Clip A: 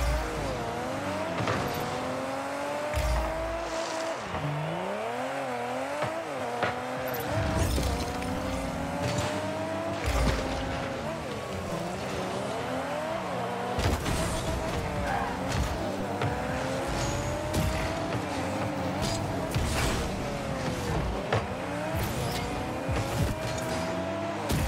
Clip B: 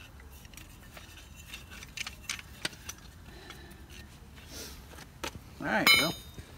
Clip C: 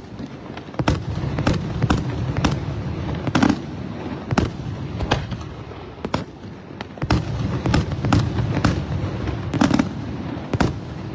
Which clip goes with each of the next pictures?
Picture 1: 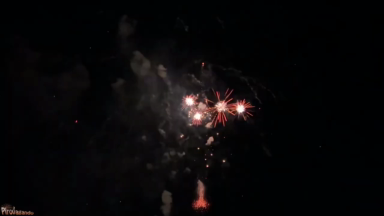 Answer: C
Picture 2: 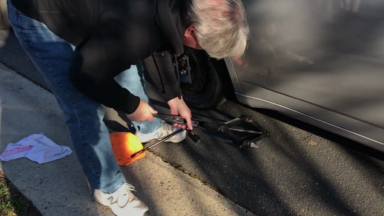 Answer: B